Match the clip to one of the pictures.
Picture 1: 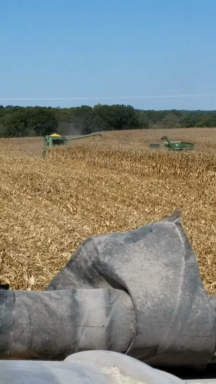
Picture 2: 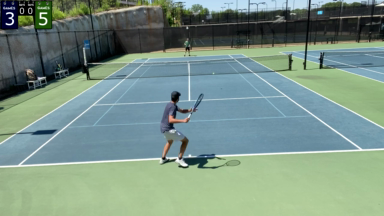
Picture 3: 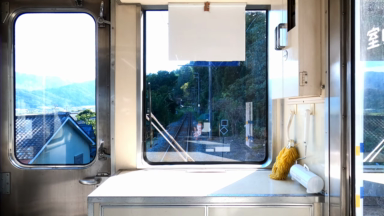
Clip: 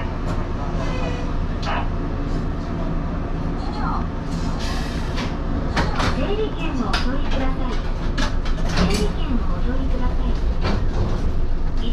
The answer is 3